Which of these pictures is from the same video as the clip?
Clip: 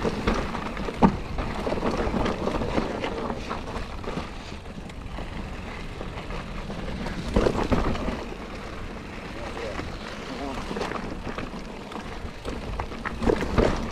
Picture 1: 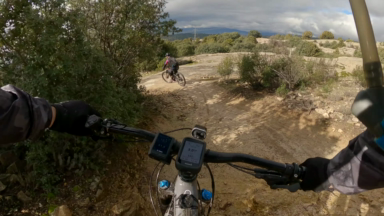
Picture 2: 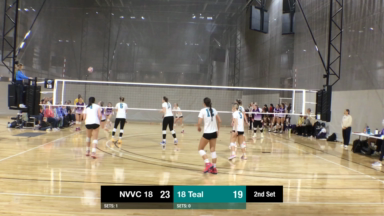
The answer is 1